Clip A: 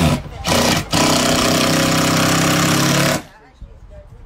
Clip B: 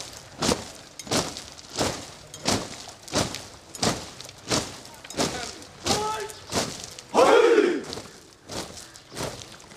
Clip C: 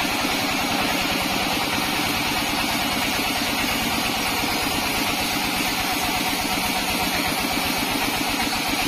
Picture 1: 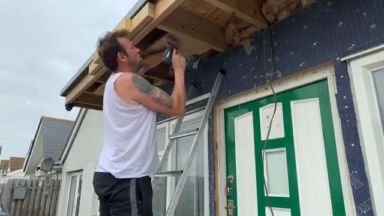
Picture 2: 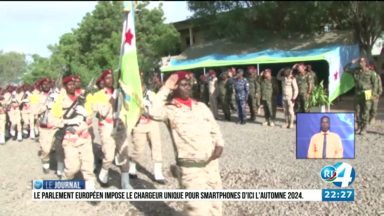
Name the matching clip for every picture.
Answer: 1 A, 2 B